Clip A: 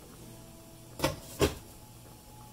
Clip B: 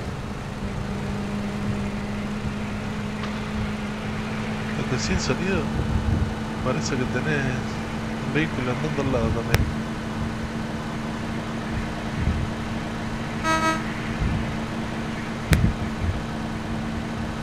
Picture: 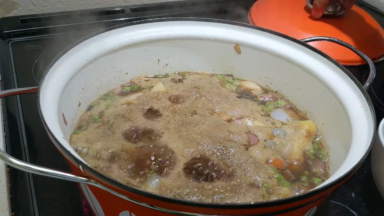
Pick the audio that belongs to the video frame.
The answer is A